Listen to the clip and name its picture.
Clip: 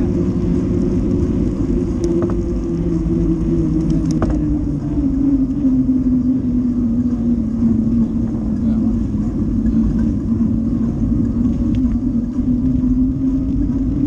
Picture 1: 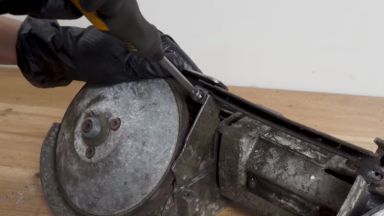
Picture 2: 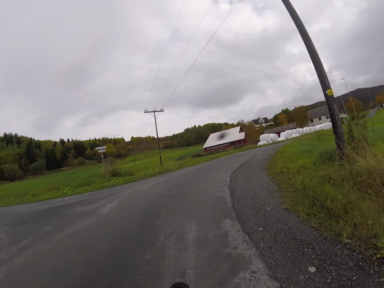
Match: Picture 2